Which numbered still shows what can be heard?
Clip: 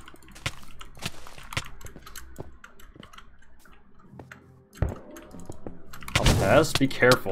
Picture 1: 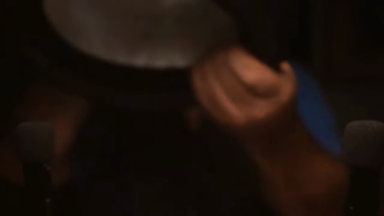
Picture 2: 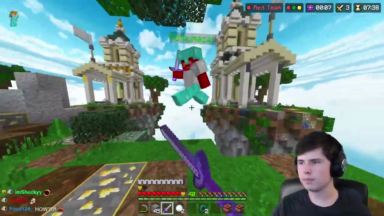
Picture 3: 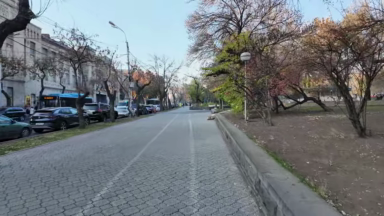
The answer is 2